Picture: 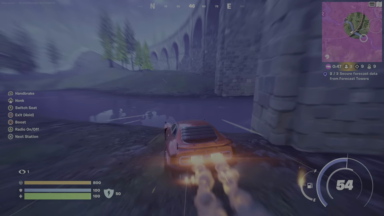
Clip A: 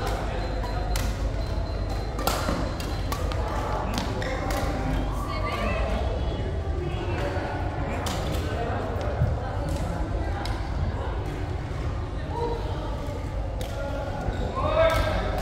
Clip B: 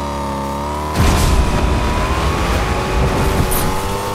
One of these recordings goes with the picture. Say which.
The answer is B